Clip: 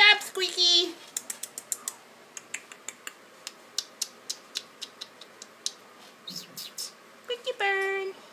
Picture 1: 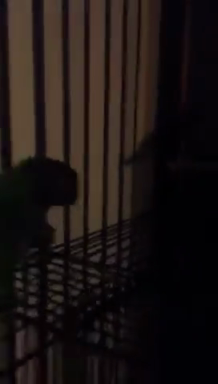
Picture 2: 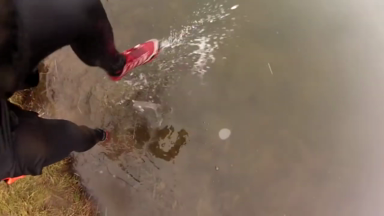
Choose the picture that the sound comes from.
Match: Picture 1